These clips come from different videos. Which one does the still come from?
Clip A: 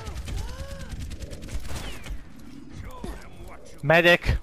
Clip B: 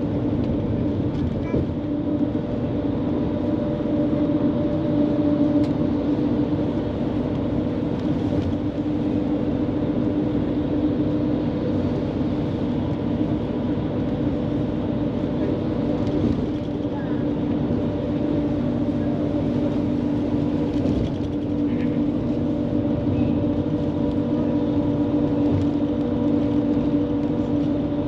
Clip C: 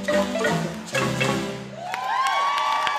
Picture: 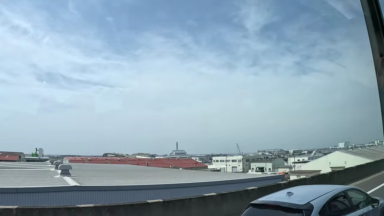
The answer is B